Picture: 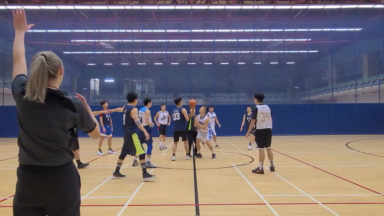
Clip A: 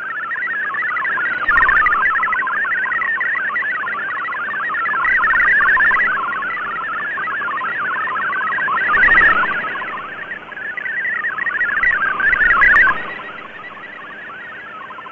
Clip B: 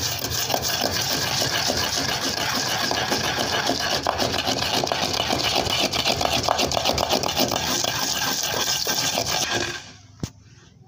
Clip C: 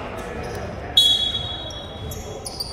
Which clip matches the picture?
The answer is C